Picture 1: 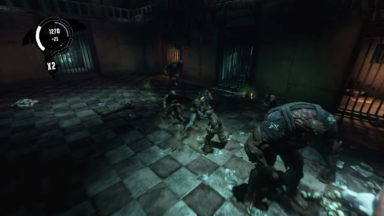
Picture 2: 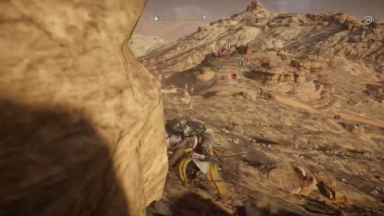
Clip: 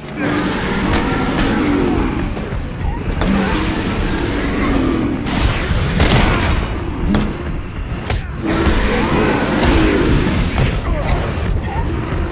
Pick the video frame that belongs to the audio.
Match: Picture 1